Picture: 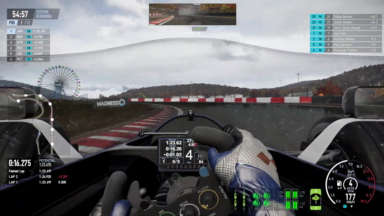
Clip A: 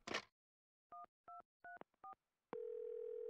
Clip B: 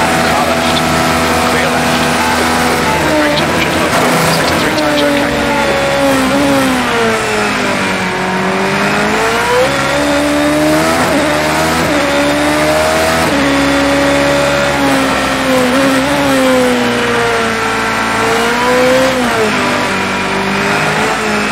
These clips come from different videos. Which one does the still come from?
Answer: B